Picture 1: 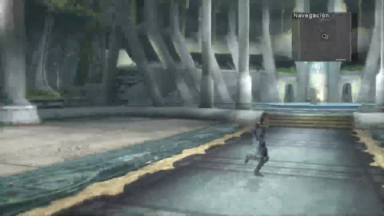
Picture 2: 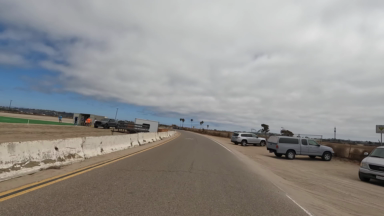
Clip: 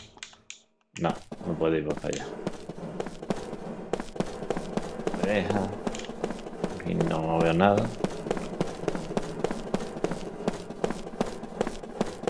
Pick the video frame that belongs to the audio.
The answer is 1